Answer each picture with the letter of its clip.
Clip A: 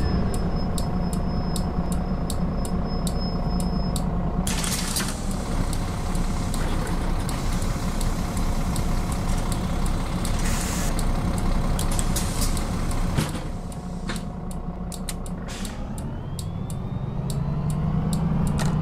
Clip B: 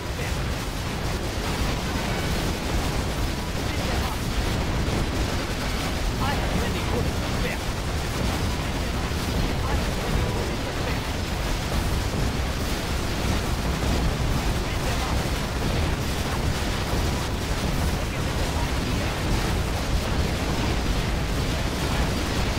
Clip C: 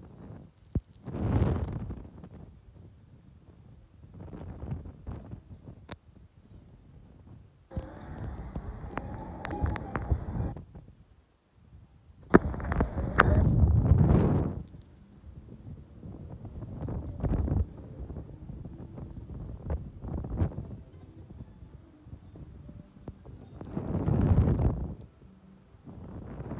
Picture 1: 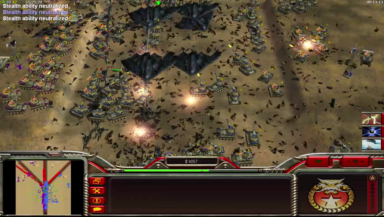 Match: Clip B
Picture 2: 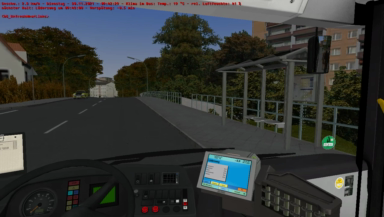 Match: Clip A